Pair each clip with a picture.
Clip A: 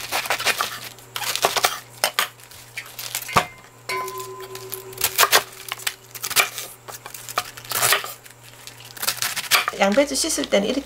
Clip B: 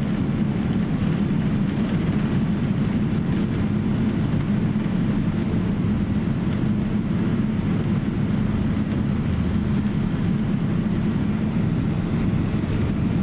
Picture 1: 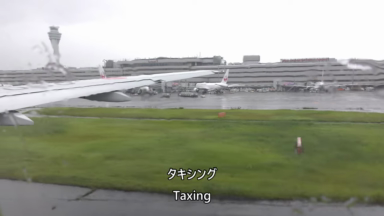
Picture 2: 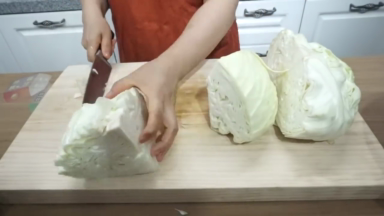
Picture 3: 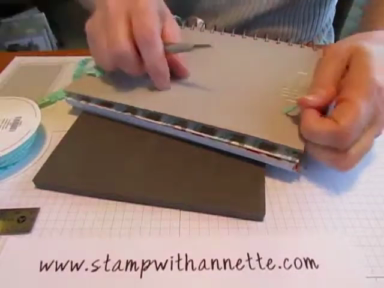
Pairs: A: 2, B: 1